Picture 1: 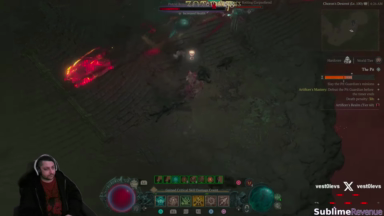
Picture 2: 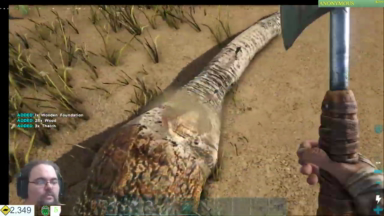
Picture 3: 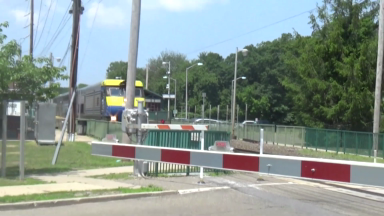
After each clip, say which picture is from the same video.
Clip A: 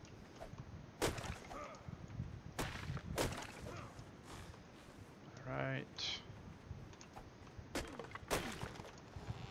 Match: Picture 2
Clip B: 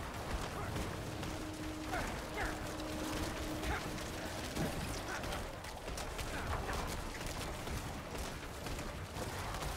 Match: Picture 1